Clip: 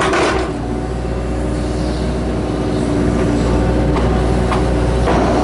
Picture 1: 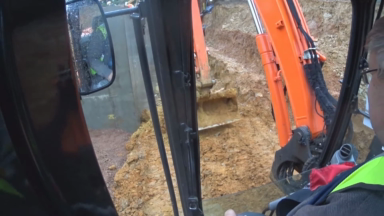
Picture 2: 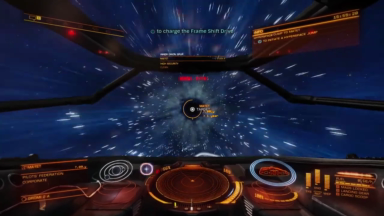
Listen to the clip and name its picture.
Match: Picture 1